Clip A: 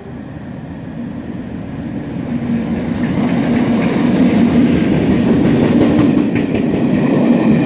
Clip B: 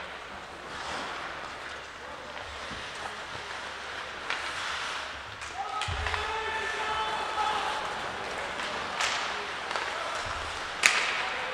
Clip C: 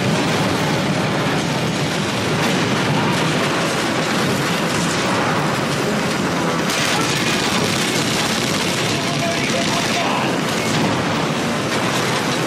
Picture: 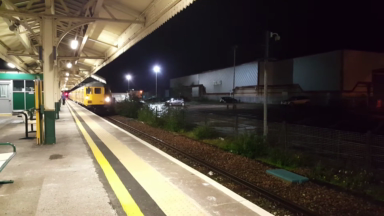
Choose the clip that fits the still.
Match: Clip A